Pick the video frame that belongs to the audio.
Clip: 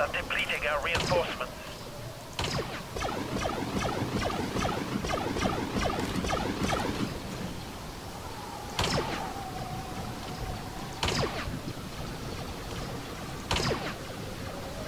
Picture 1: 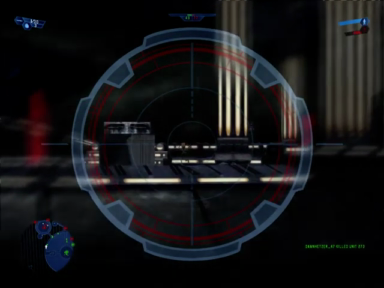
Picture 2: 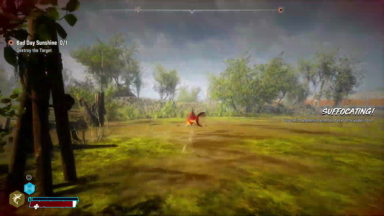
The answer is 1